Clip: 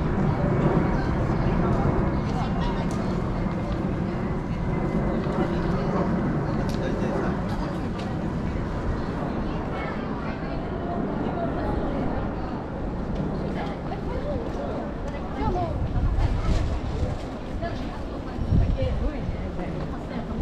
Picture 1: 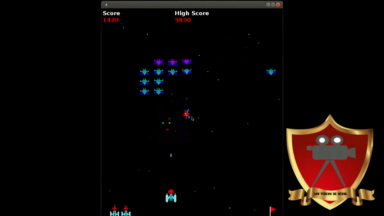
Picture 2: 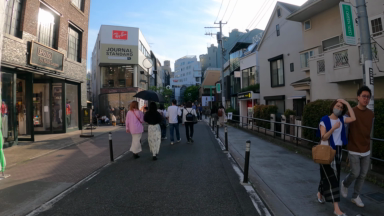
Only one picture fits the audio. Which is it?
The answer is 2